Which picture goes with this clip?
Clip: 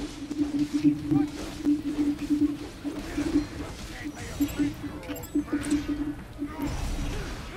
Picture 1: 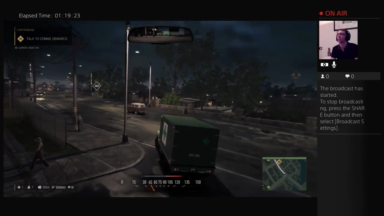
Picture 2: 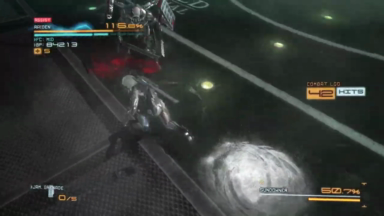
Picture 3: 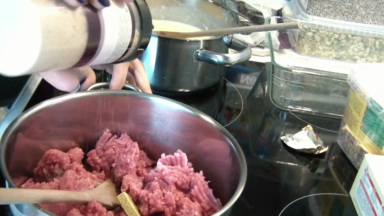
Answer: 2